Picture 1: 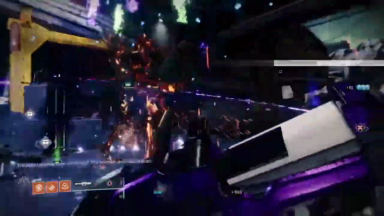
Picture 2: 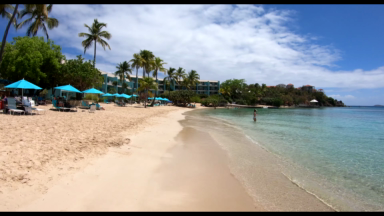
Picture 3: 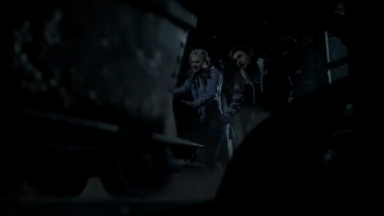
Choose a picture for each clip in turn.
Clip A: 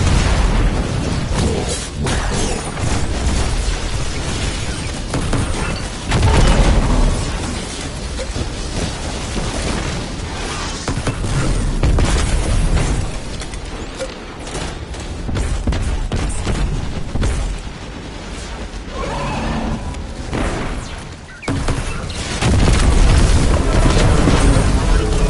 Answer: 1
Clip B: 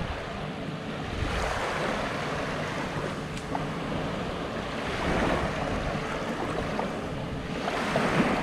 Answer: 2